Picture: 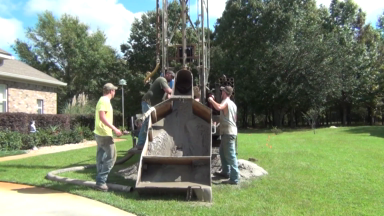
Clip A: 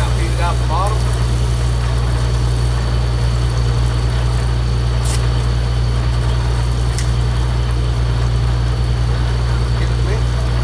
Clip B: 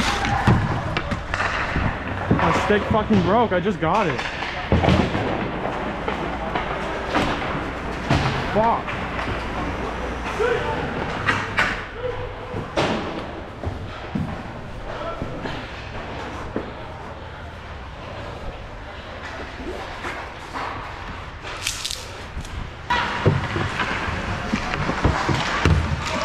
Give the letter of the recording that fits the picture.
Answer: A